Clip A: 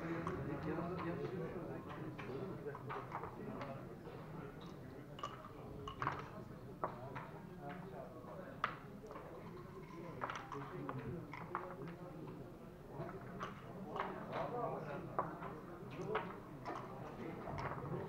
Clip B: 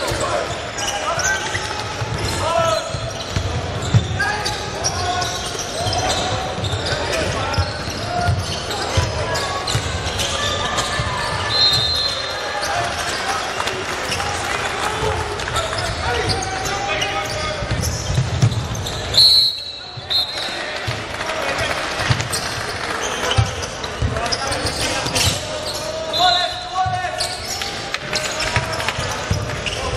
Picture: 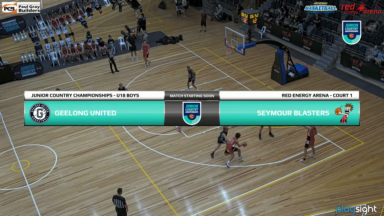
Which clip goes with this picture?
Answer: B